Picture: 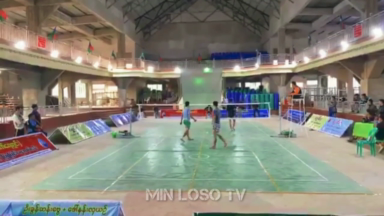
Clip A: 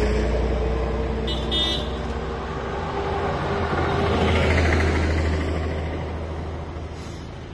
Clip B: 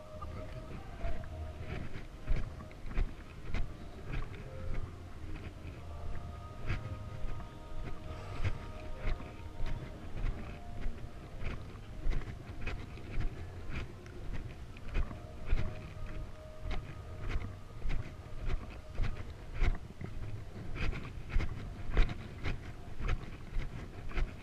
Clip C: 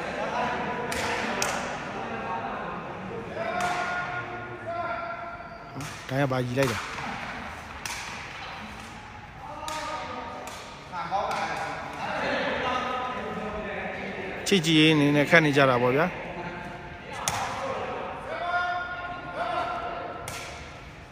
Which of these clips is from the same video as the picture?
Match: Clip C